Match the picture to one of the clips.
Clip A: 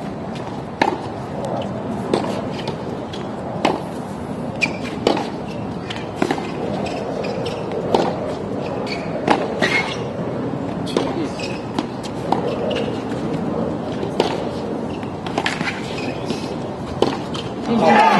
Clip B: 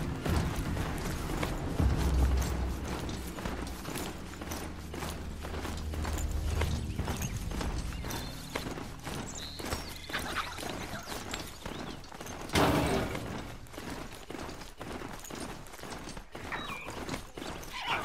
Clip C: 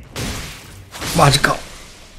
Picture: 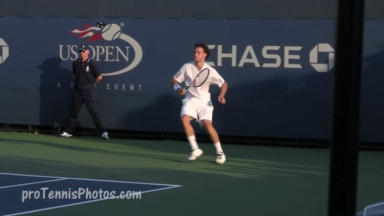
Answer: A